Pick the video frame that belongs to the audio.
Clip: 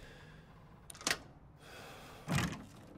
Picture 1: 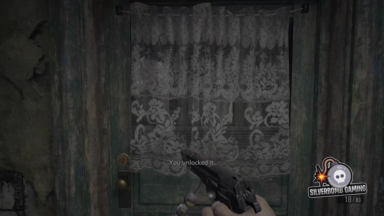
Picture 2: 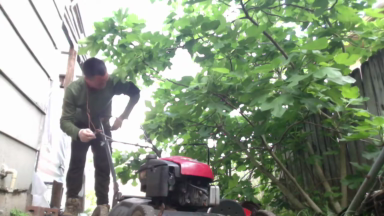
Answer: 1